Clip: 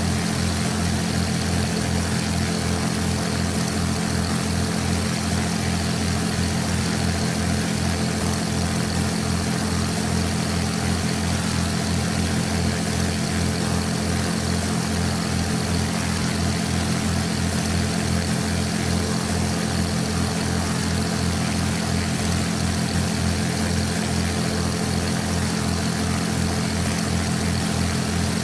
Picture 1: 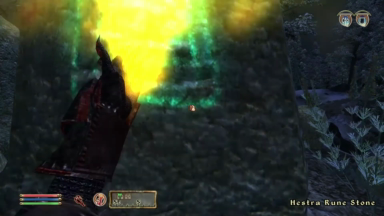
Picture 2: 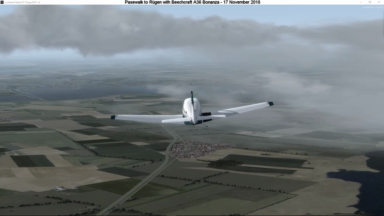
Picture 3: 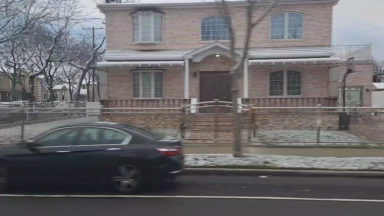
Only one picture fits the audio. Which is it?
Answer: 2